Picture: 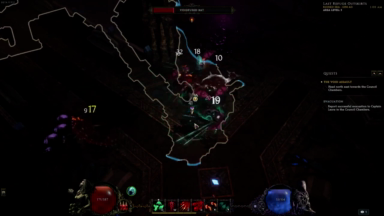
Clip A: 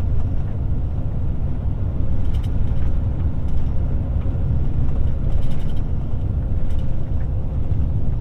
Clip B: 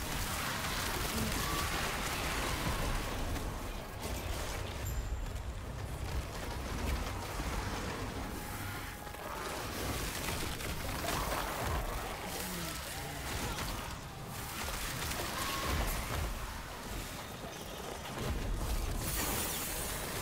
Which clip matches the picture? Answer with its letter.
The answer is B